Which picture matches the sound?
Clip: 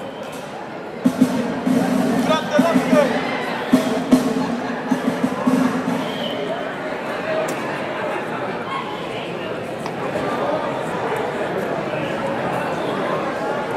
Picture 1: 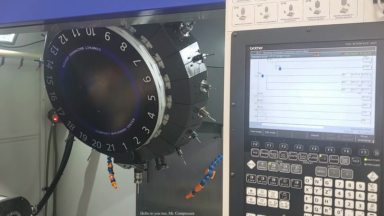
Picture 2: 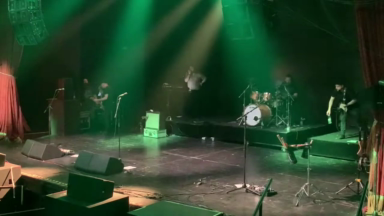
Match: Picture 2